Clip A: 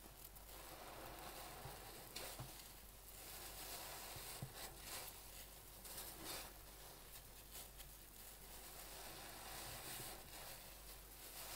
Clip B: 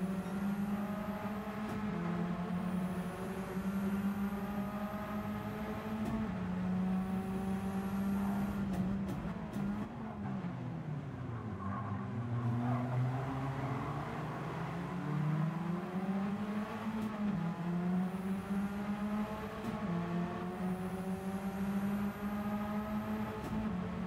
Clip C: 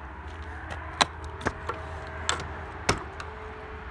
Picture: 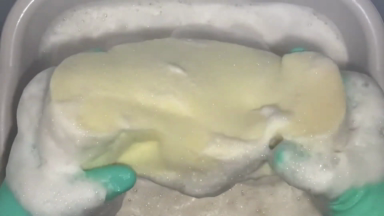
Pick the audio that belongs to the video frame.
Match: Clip A